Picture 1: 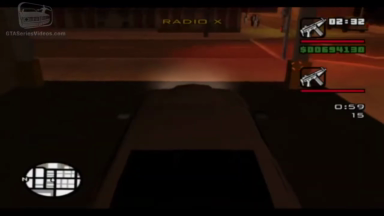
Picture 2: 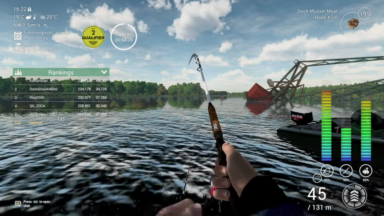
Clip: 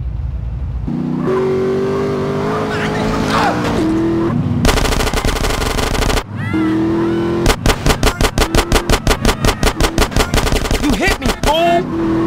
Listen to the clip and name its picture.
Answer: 1